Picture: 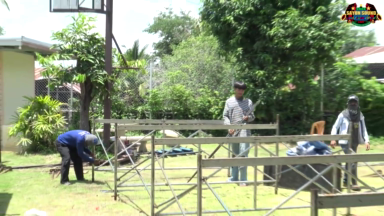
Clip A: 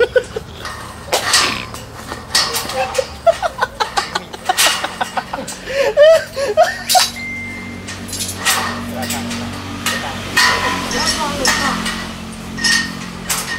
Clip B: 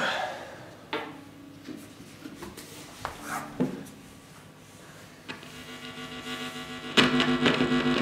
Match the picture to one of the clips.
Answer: A